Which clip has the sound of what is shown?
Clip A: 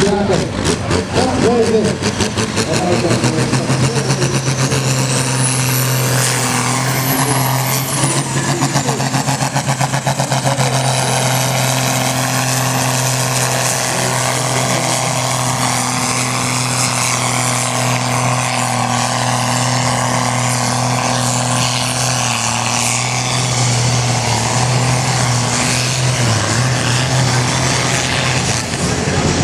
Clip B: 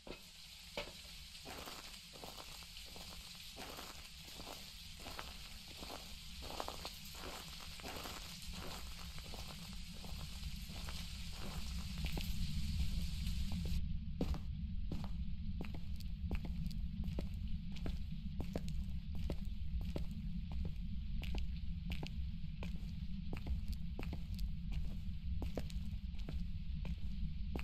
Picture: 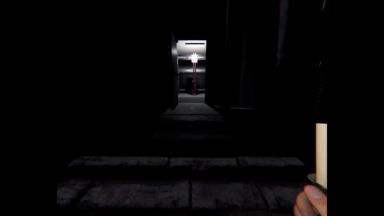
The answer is B